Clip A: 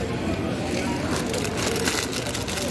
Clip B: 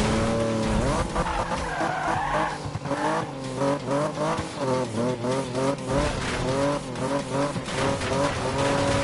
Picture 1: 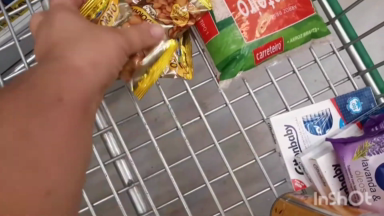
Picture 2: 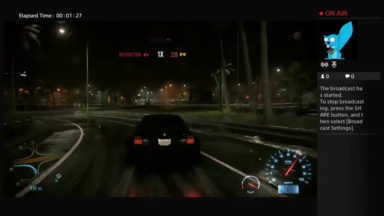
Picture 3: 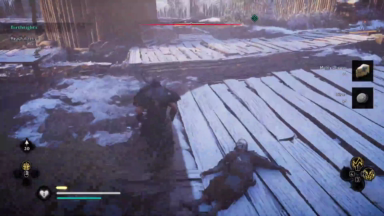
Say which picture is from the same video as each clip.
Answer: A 1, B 2